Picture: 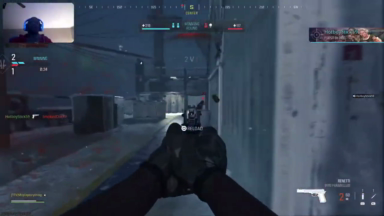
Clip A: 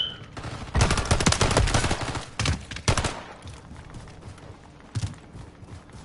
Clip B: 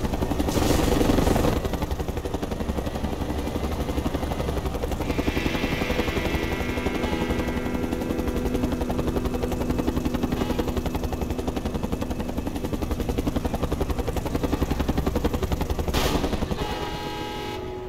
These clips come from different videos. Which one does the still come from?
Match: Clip A